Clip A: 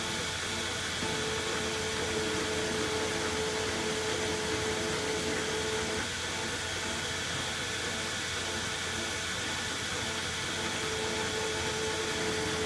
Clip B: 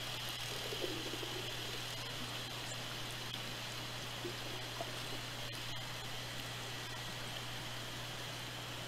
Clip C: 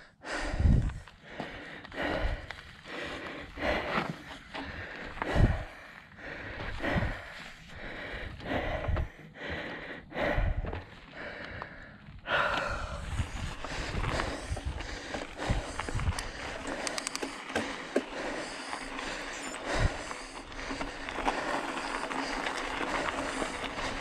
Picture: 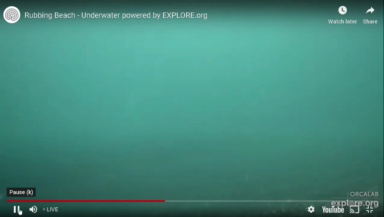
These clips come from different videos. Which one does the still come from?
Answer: B